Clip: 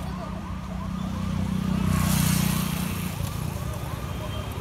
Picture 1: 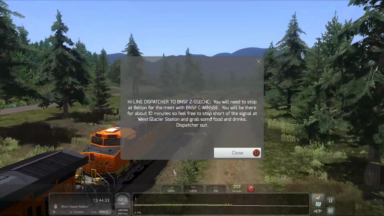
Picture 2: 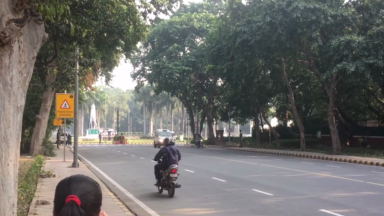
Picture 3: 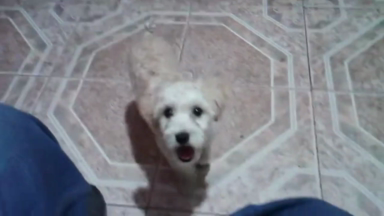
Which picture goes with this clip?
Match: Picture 2